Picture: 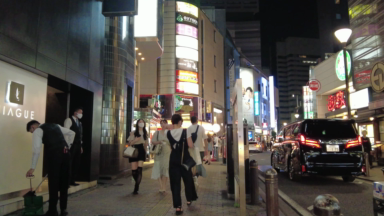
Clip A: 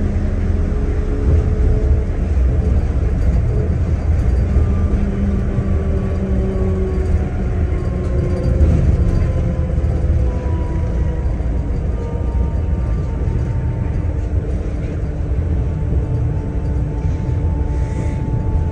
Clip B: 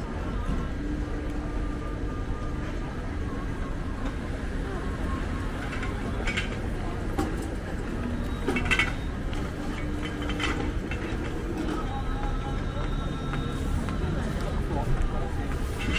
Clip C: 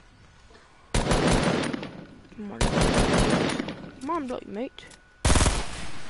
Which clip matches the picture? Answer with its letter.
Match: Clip B